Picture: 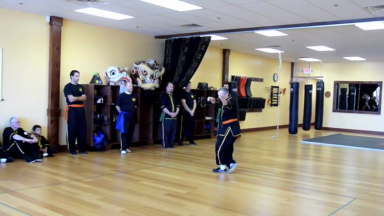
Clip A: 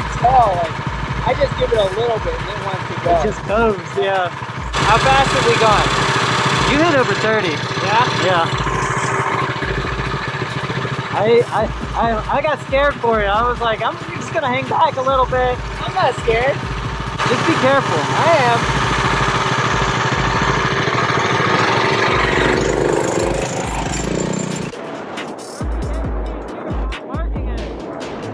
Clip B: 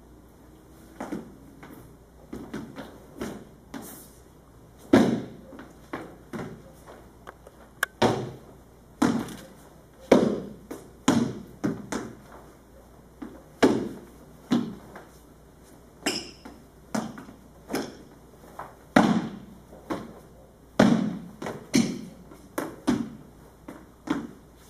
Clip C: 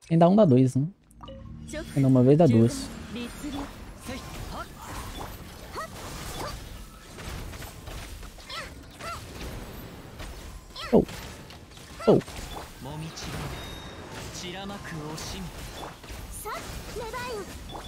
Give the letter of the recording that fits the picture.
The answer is B